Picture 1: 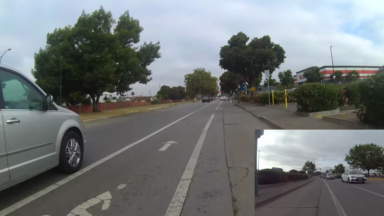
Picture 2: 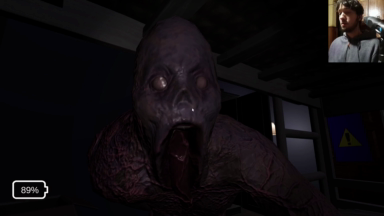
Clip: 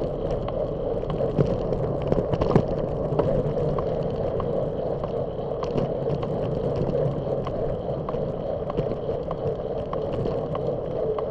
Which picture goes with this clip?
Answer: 1